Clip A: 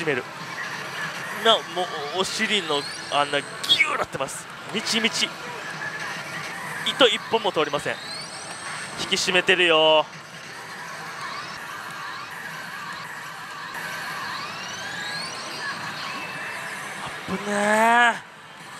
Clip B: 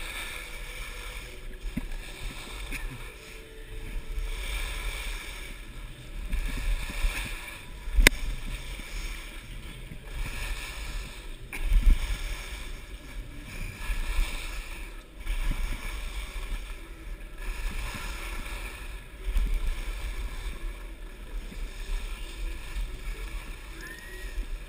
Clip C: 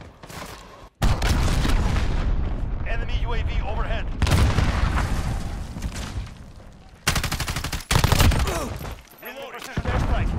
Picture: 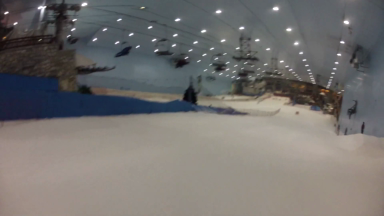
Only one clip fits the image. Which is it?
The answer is B